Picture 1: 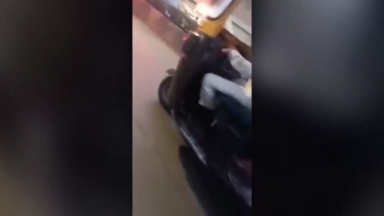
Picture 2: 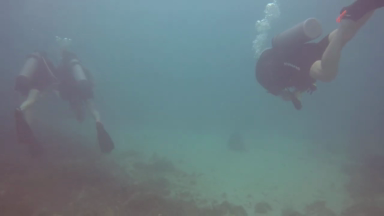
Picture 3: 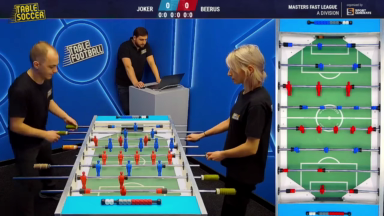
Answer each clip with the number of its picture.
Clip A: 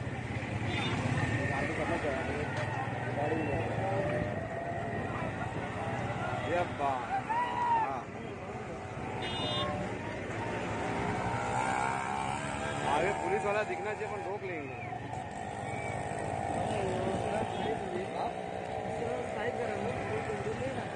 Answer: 1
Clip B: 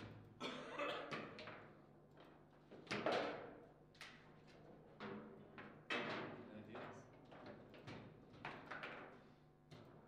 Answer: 3